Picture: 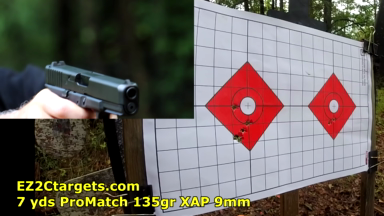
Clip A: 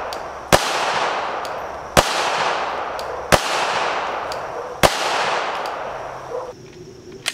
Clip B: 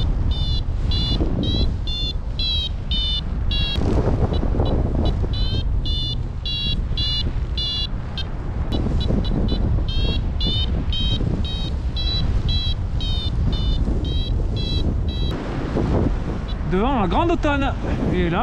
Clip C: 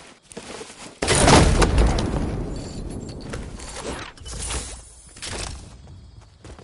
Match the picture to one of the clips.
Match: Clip A